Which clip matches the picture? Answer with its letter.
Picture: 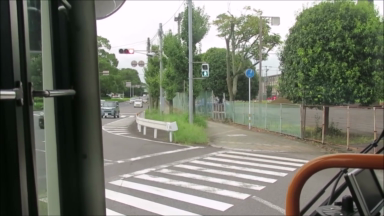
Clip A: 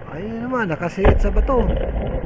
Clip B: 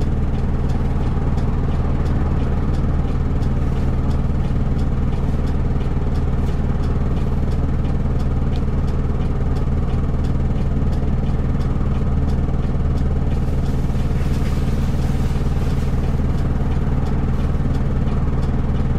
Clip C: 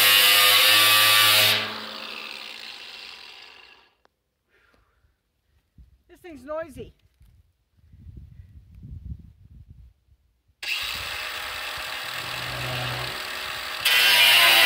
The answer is B